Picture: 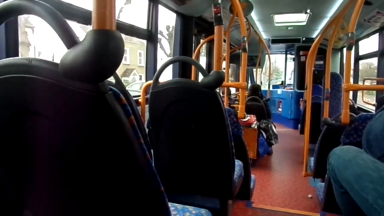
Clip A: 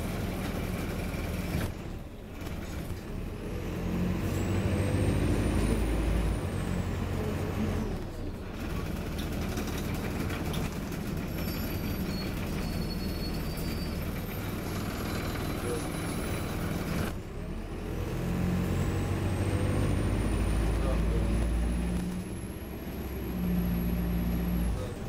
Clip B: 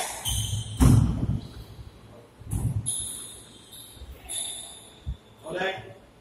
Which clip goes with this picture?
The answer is A